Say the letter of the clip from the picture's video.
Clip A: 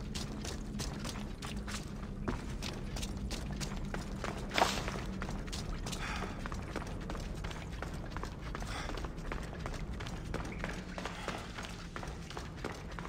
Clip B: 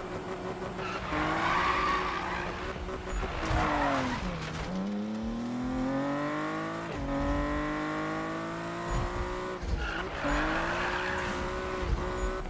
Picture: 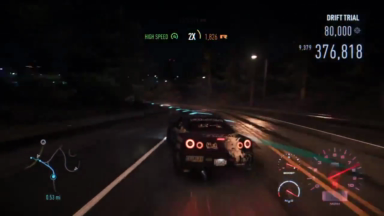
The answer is B